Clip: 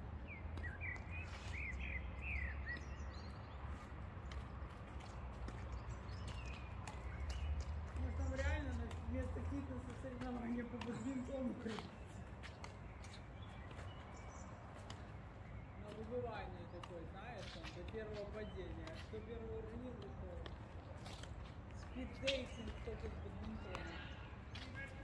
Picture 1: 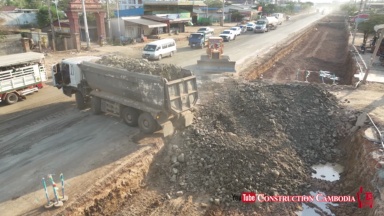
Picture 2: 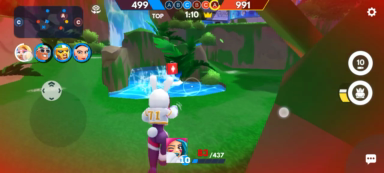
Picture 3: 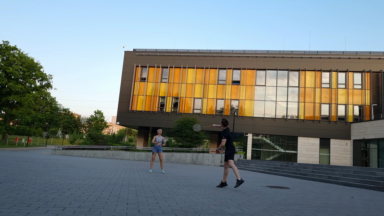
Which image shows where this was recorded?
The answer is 3